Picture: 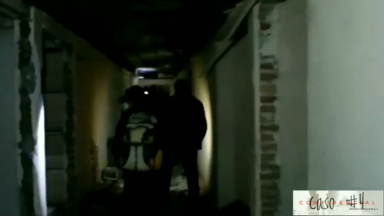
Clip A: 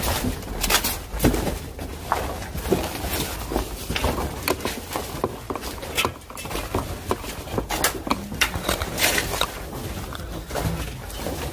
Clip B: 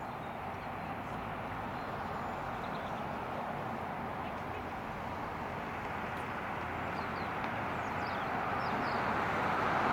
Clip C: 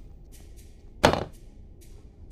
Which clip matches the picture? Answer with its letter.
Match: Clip A